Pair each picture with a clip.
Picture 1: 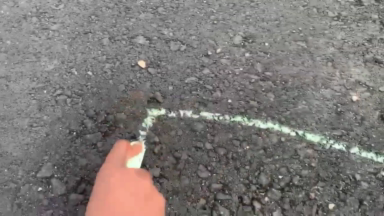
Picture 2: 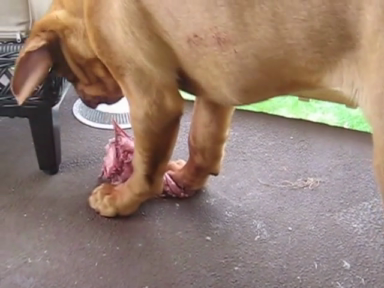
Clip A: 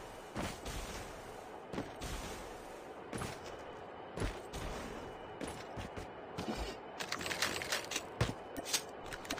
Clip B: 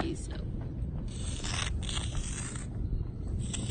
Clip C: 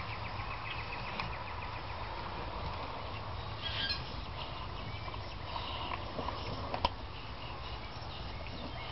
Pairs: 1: B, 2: C